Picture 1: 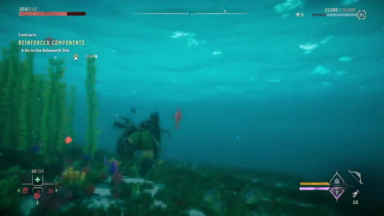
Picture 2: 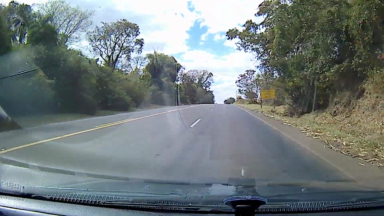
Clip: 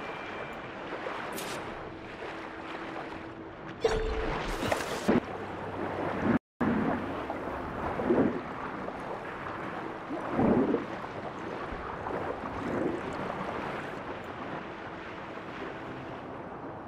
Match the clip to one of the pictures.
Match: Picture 1